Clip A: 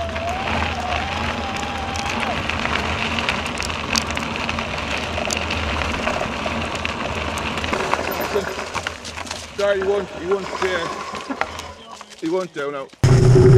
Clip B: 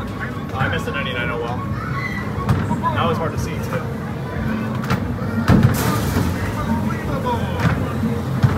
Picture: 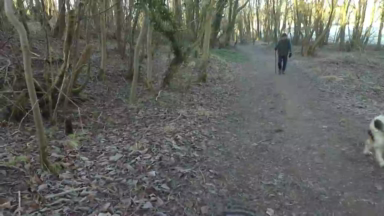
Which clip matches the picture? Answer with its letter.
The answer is A